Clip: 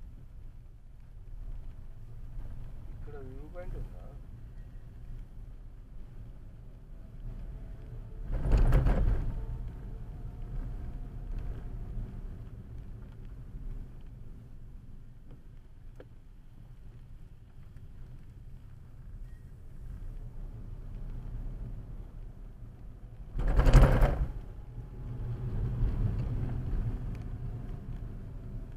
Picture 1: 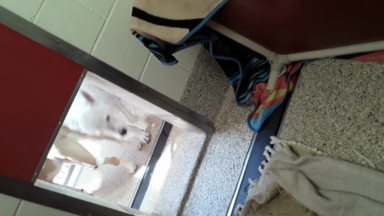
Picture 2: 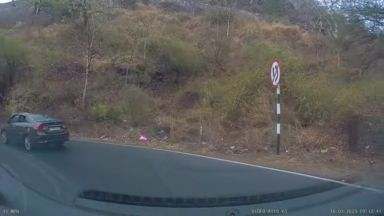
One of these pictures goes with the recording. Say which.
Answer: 2